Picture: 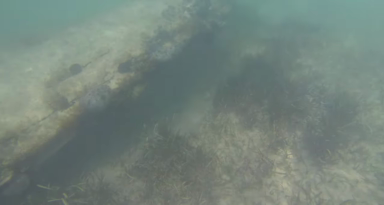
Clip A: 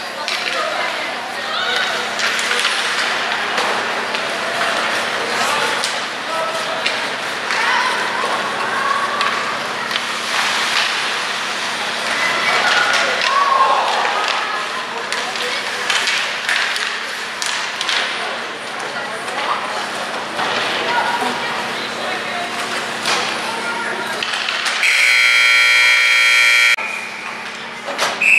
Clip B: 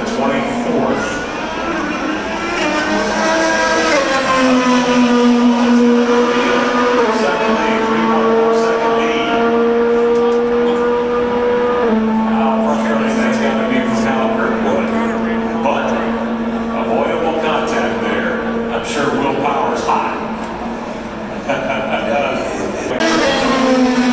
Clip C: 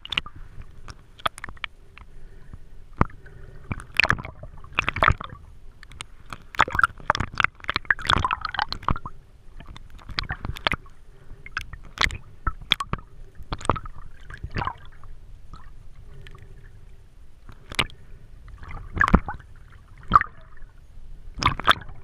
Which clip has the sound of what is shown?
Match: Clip C